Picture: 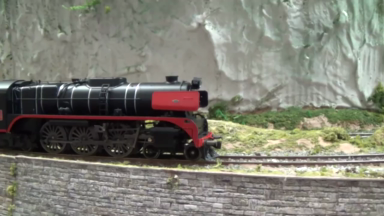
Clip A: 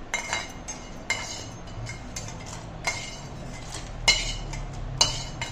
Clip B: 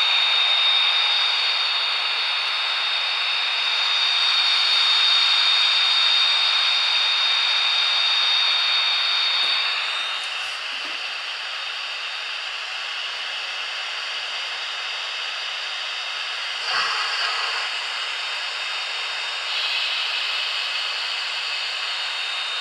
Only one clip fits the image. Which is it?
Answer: B